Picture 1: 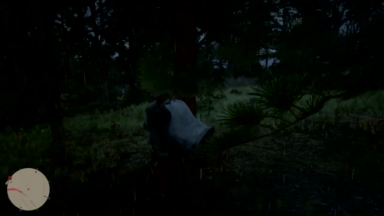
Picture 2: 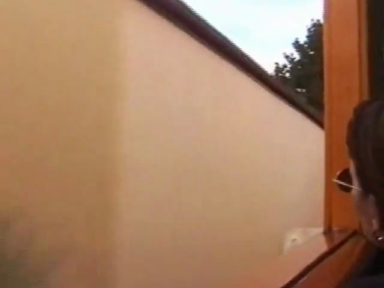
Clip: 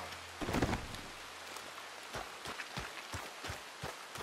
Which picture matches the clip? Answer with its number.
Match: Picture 1